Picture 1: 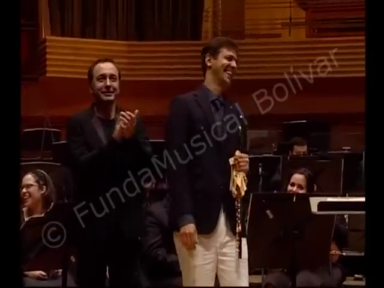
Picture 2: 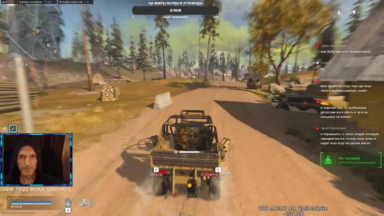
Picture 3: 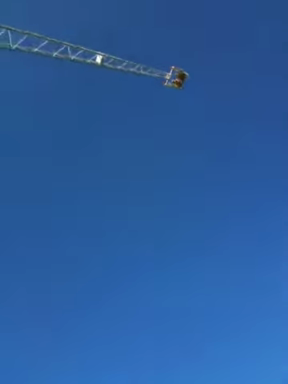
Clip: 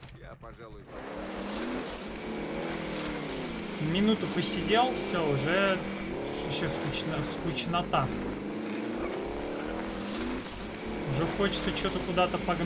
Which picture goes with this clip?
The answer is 2